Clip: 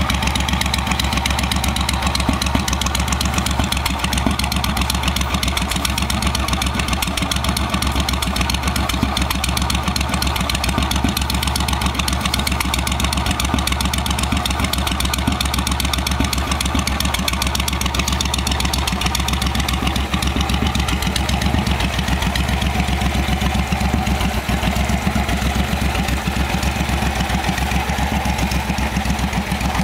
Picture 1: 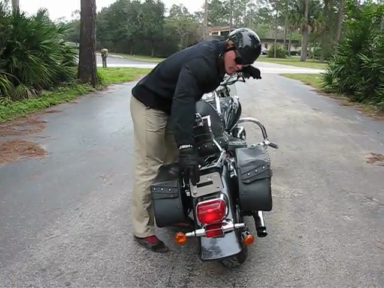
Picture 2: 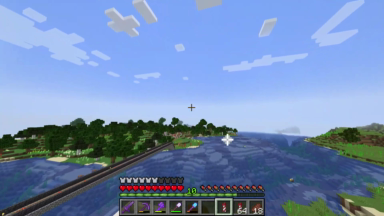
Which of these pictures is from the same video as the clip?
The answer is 1